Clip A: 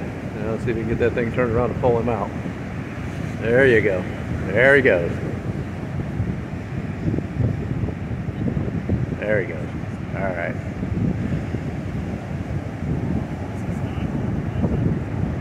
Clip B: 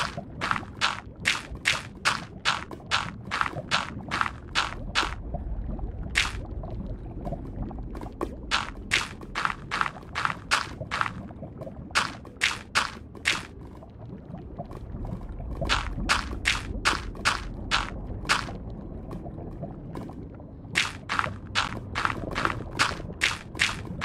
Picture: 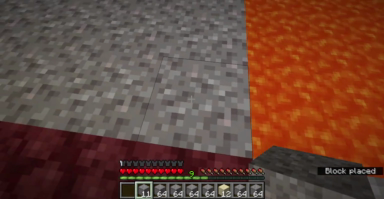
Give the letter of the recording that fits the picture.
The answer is B